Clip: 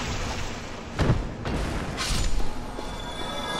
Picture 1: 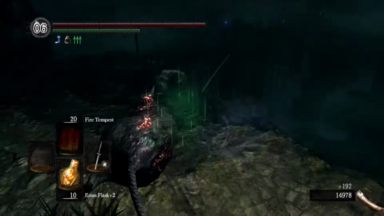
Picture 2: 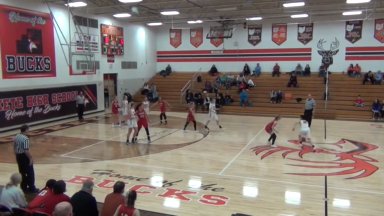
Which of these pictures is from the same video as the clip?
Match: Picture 1